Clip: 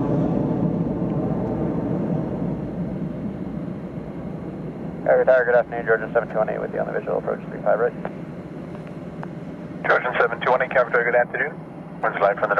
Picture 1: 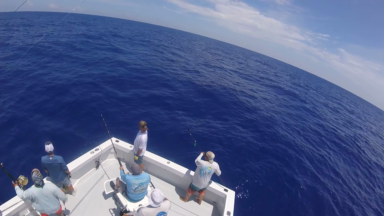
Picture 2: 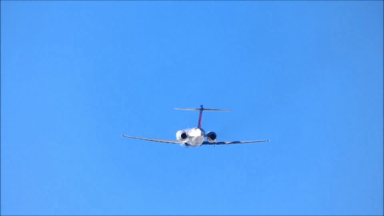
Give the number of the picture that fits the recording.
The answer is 2